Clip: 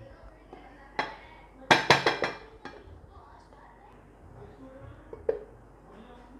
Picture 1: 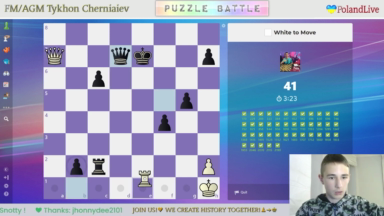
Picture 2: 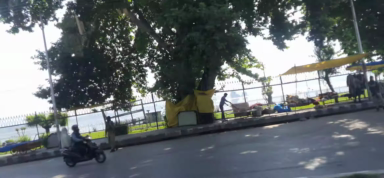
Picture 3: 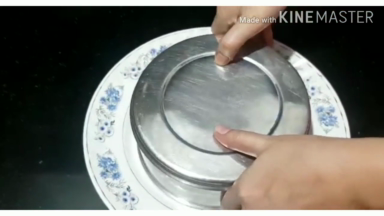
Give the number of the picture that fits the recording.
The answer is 3